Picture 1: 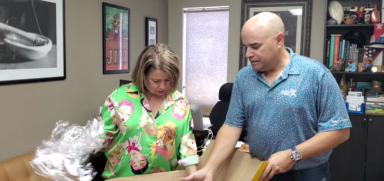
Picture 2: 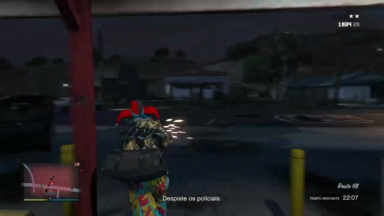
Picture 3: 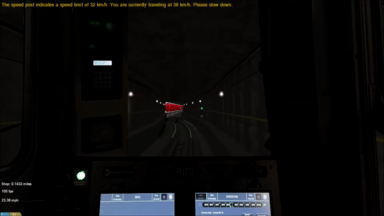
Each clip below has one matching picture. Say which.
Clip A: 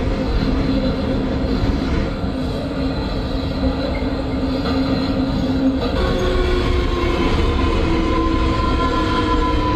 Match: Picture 3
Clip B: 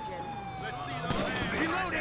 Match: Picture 2